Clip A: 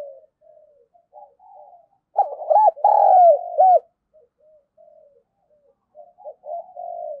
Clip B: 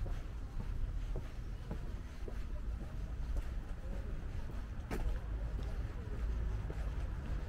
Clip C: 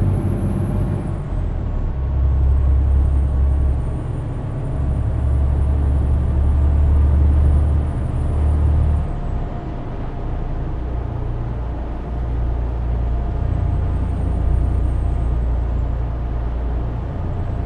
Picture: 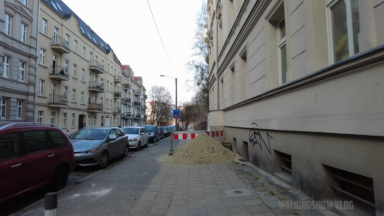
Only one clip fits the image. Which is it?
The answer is B